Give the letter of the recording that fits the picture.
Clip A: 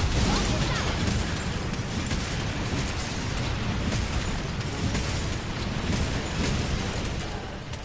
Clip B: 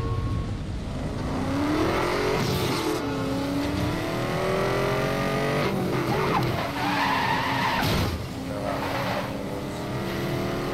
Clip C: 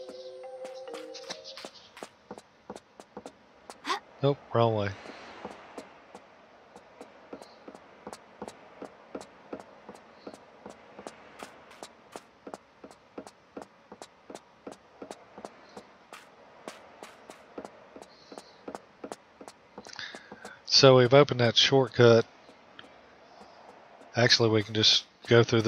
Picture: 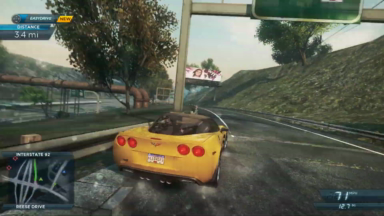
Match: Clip B